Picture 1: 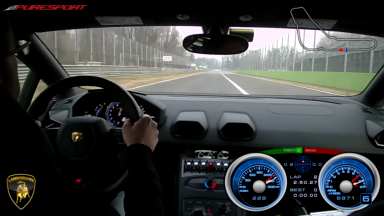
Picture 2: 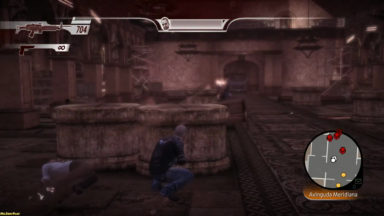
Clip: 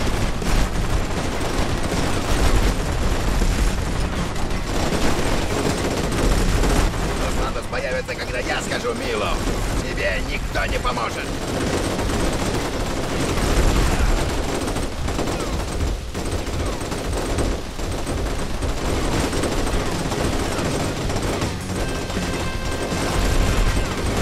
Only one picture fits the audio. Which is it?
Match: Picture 2